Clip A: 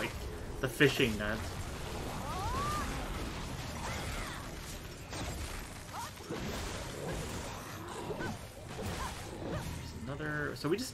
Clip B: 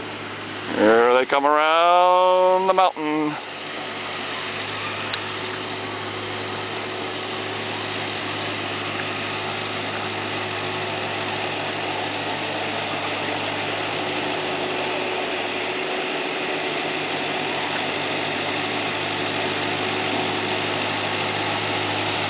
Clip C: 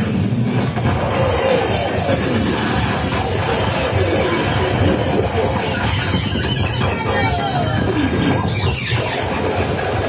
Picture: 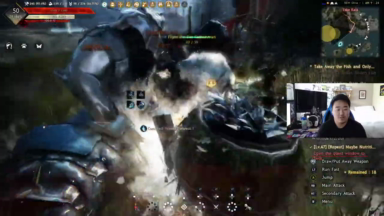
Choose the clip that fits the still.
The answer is A